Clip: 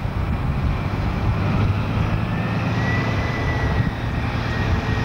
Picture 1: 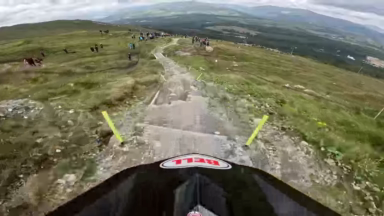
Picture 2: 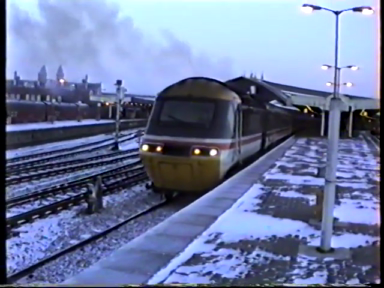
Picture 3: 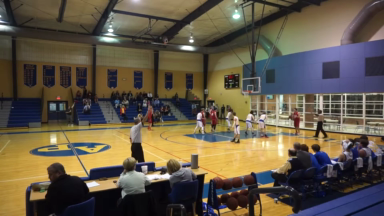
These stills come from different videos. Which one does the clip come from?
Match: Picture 2